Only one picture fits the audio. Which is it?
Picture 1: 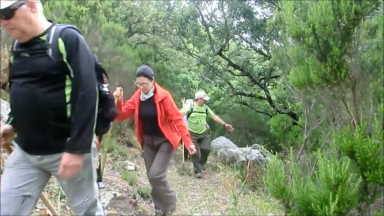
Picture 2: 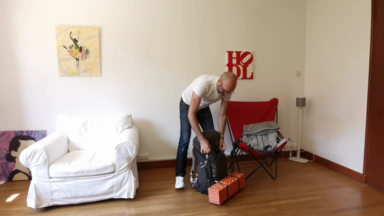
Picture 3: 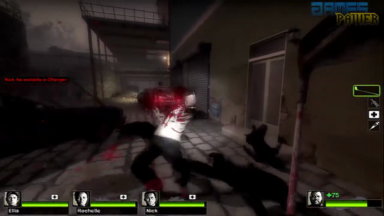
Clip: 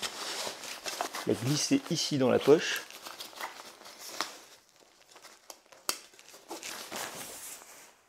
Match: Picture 2